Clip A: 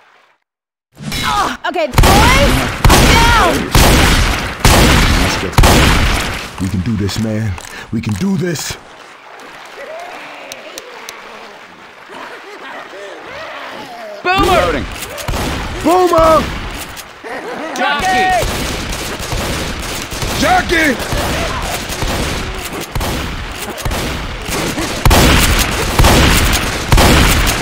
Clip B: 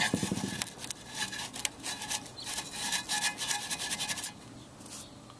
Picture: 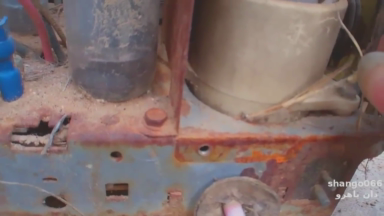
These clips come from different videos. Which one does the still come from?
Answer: B